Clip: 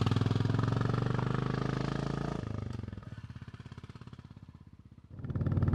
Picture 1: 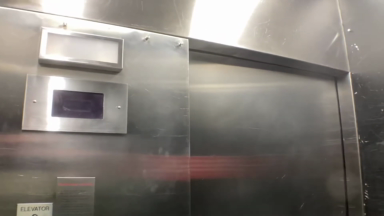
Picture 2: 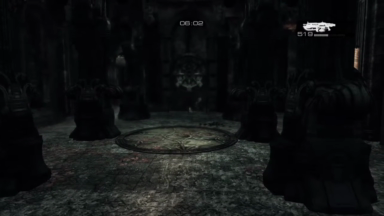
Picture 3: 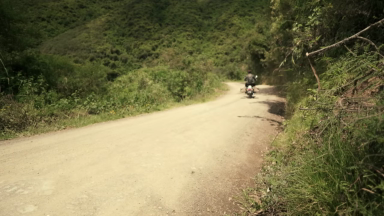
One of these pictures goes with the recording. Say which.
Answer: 3